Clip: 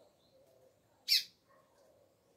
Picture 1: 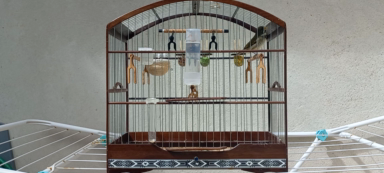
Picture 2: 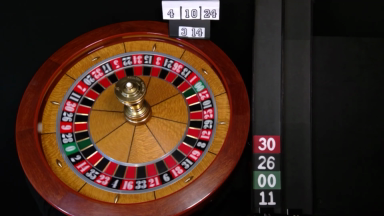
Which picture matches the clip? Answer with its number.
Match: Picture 1